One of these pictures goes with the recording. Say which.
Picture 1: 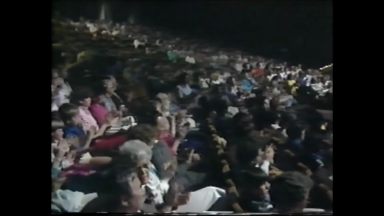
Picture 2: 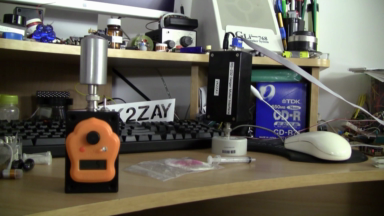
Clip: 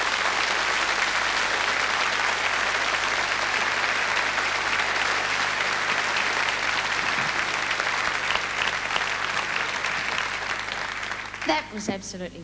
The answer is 1